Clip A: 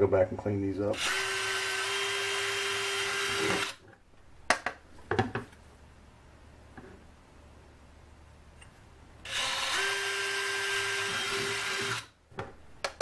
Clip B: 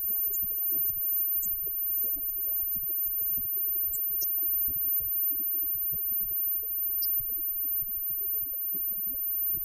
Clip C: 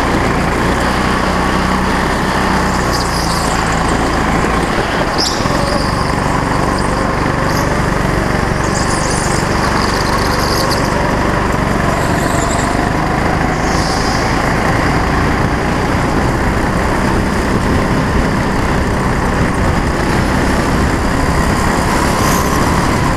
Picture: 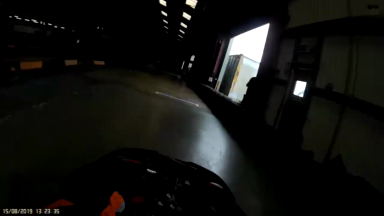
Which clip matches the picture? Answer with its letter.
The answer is C